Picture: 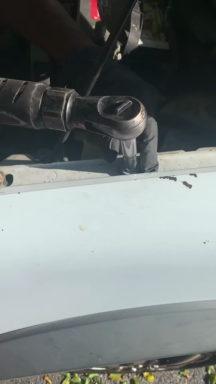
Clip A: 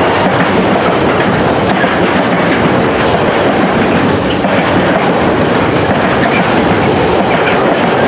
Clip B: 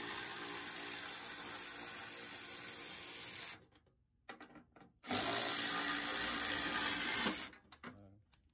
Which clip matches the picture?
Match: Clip B